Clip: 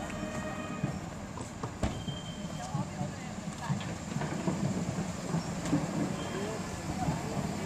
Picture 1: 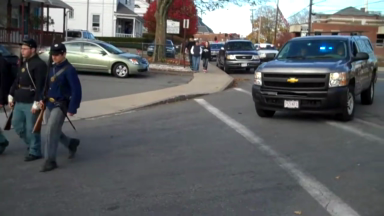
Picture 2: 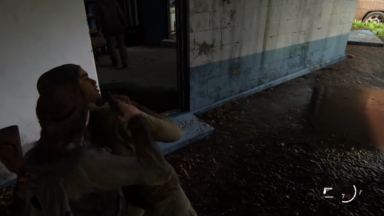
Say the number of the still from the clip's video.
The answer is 1